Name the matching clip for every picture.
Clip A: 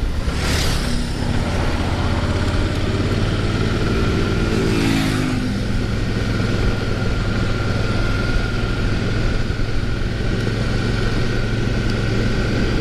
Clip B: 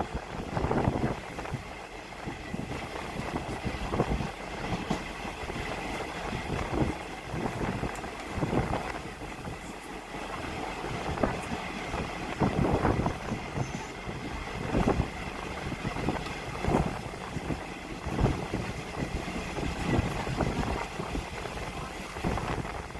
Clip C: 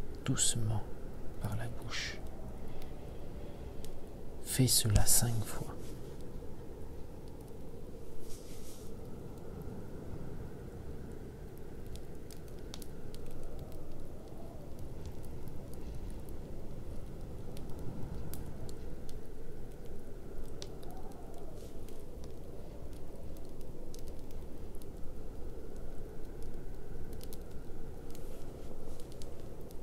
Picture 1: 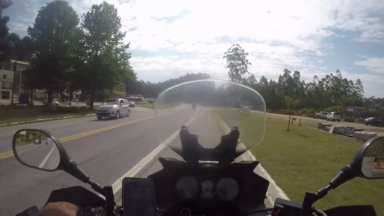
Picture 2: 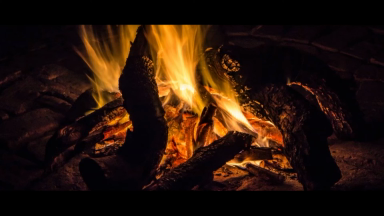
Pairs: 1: A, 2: C